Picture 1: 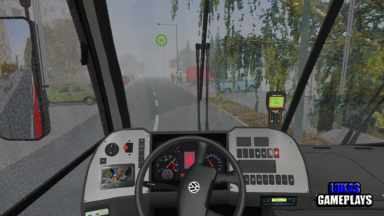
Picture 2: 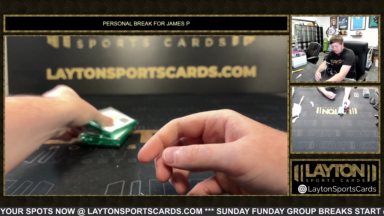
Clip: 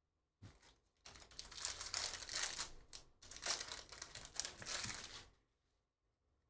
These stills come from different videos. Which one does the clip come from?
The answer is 2